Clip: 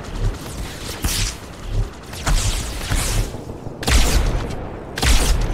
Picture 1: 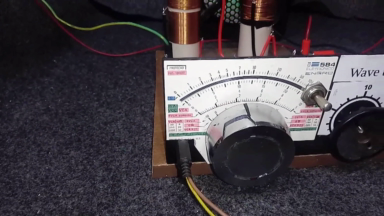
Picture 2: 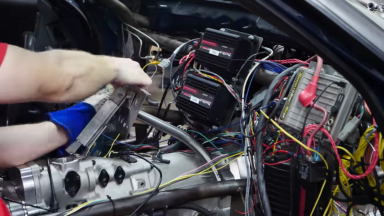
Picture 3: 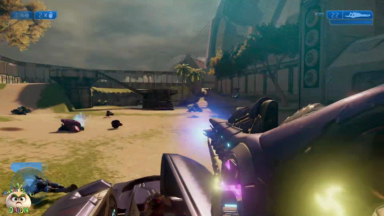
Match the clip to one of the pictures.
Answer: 3